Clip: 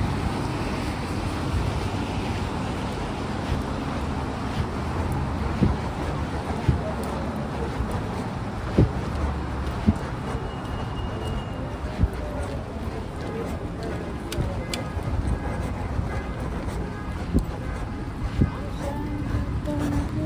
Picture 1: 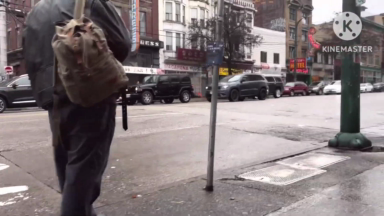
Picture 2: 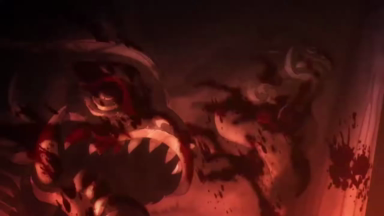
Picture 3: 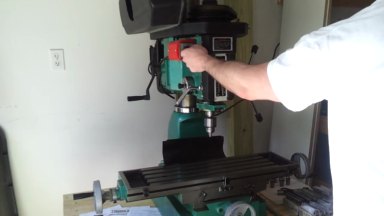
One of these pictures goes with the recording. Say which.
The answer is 1